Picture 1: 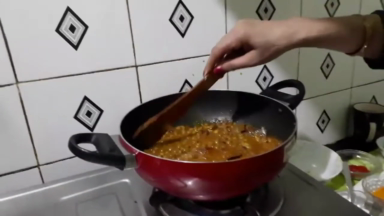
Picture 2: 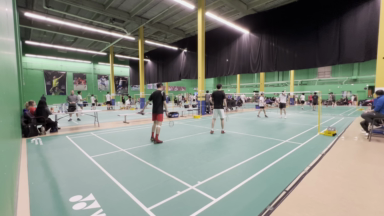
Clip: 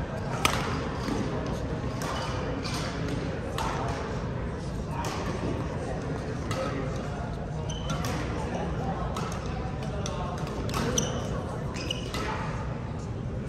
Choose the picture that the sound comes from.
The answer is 2